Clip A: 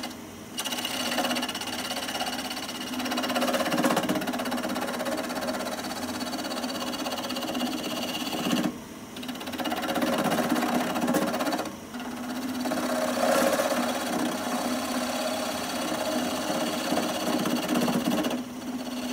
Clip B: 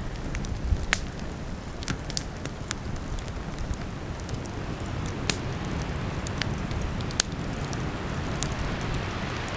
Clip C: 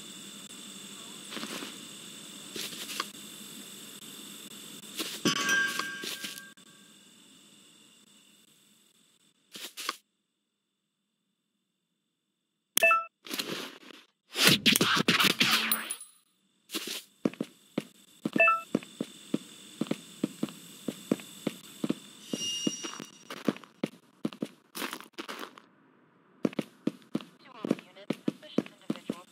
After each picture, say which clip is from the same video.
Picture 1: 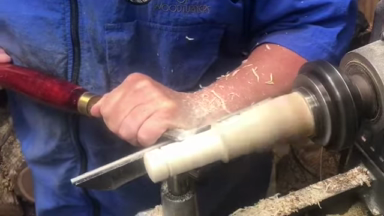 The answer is A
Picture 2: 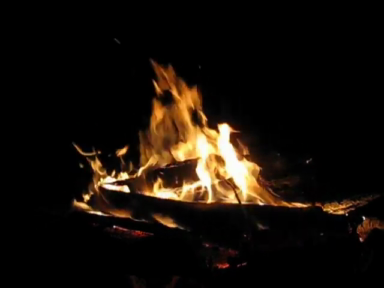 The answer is B